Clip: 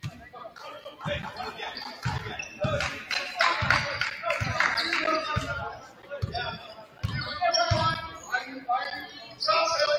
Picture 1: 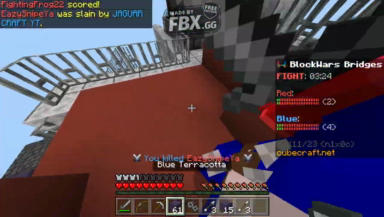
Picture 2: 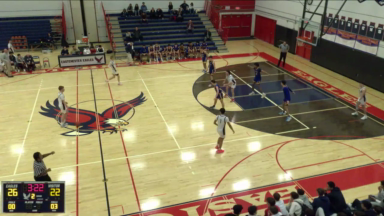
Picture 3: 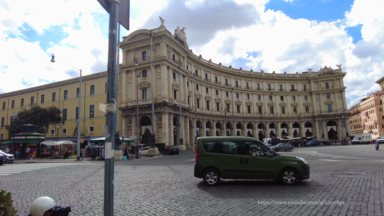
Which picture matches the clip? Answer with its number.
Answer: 2